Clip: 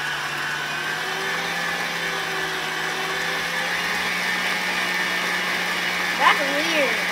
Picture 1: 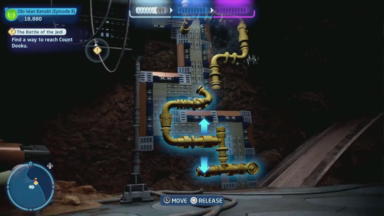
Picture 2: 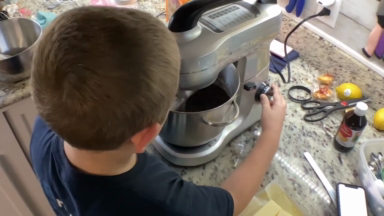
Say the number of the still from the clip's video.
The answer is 2